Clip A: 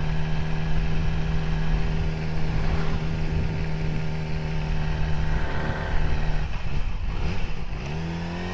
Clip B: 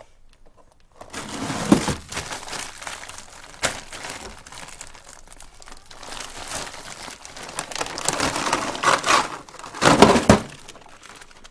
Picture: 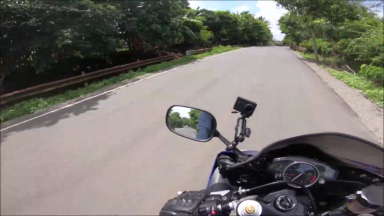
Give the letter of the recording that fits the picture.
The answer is A